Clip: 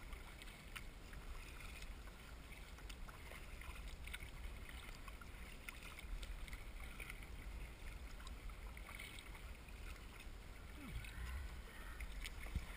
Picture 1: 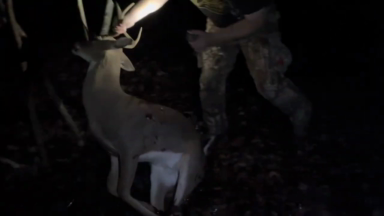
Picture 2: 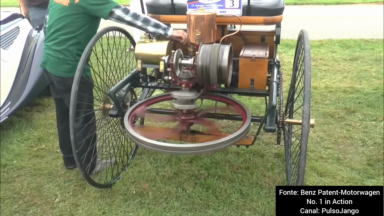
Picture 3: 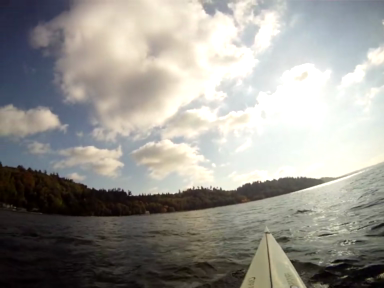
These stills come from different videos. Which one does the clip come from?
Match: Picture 3